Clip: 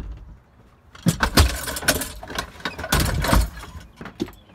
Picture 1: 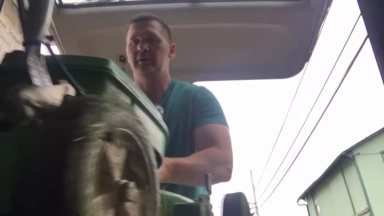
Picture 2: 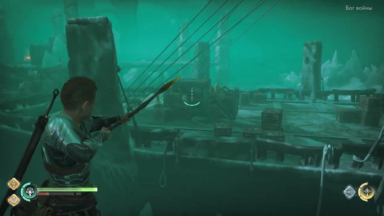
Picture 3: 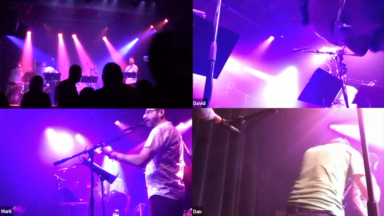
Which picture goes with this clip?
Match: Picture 1